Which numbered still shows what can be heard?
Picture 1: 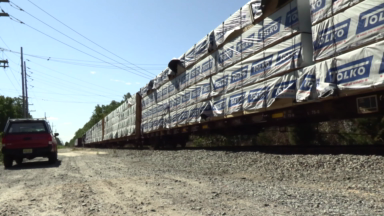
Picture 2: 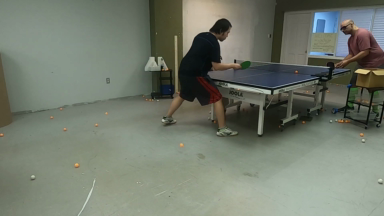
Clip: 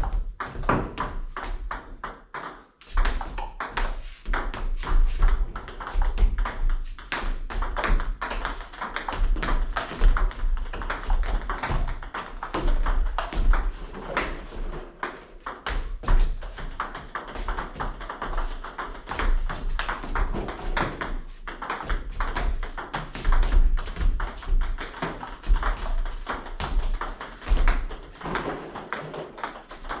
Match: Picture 2